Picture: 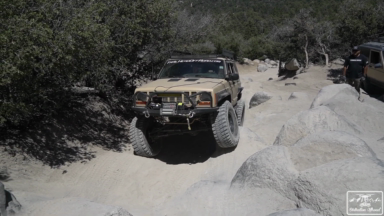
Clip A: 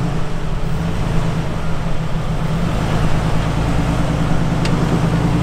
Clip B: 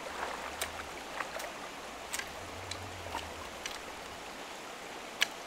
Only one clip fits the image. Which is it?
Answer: A